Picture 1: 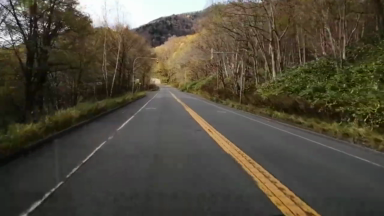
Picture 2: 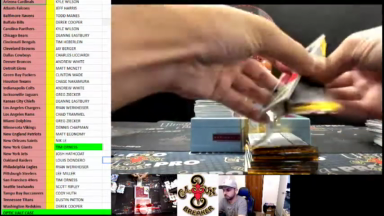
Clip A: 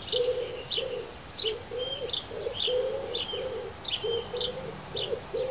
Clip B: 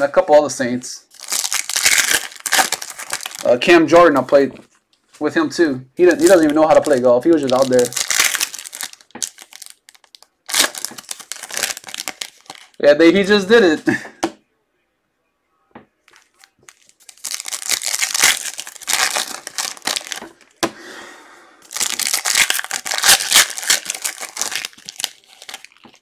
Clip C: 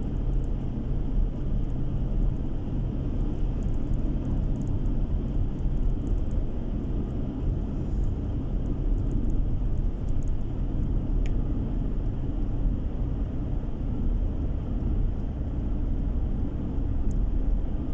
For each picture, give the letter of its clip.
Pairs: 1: C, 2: B